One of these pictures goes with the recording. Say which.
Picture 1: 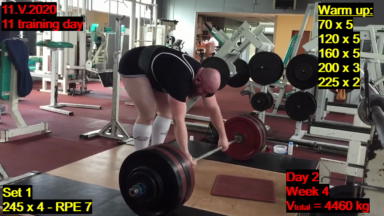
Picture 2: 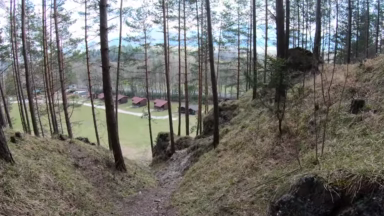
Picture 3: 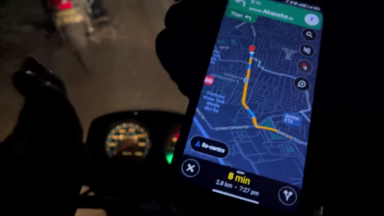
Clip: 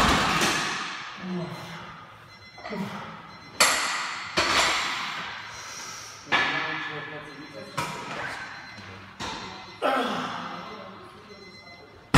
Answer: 1